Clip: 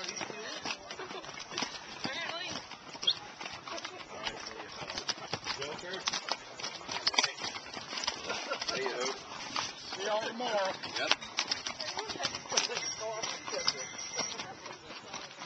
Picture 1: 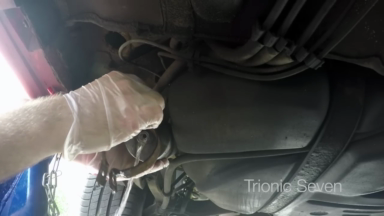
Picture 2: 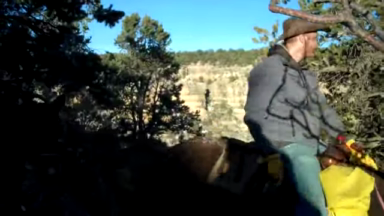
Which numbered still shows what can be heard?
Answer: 2